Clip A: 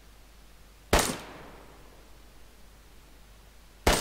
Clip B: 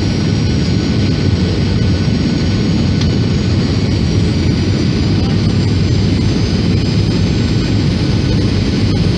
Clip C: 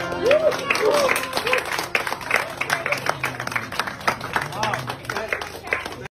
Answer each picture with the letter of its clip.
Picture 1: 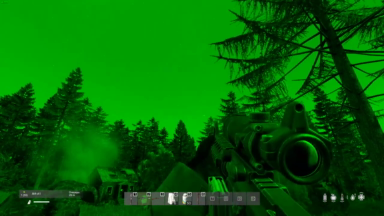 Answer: A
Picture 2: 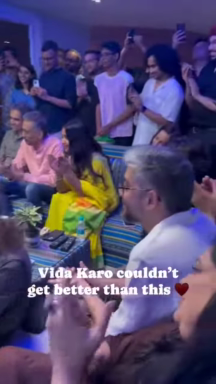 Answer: C